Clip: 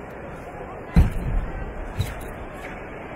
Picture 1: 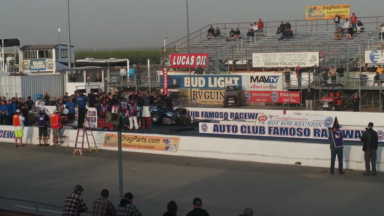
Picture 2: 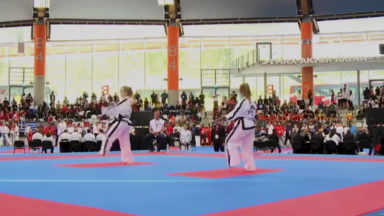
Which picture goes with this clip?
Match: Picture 2